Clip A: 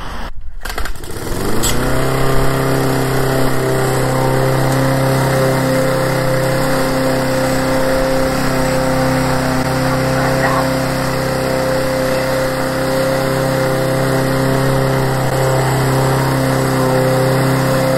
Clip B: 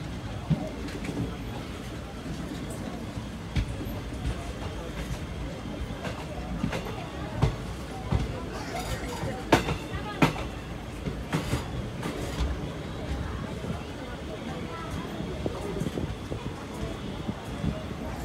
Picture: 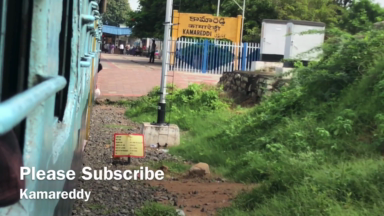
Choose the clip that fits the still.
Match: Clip B